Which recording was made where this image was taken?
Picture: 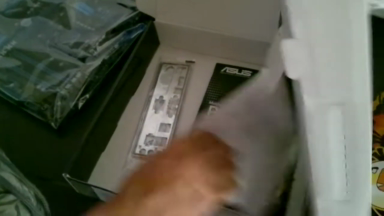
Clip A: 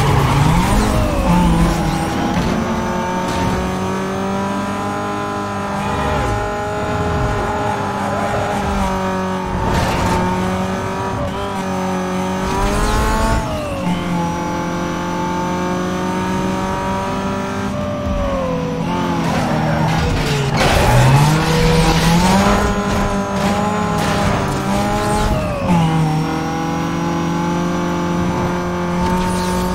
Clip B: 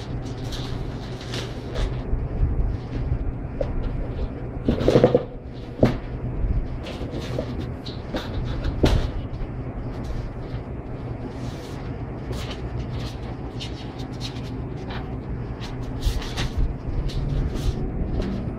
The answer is B